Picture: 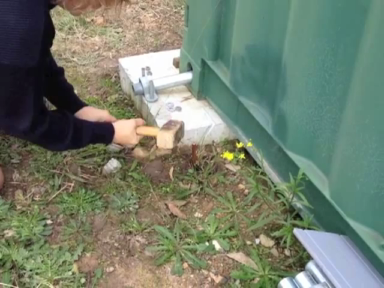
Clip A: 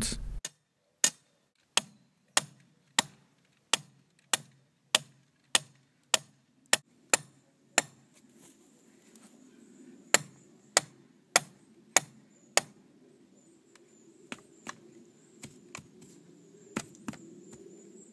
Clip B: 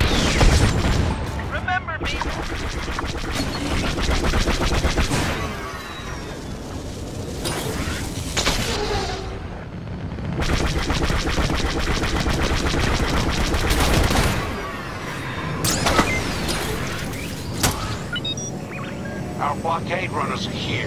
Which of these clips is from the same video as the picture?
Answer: A